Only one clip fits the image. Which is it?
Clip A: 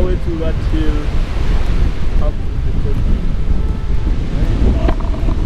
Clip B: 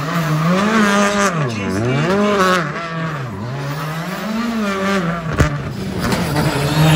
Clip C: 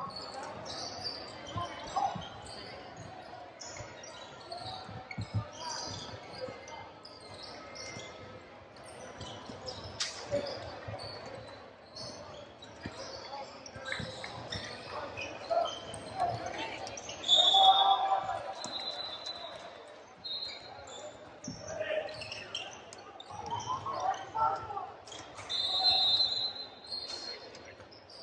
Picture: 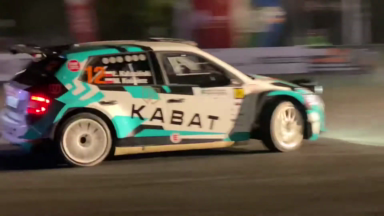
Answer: B